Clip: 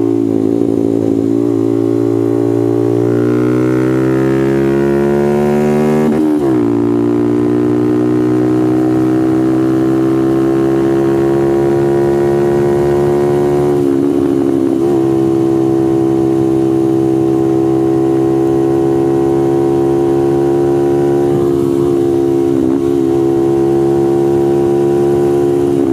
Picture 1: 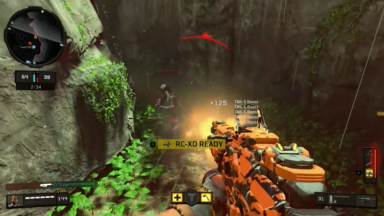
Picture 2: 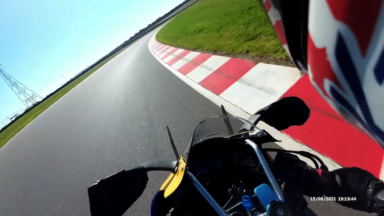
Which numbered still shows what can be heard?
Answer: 2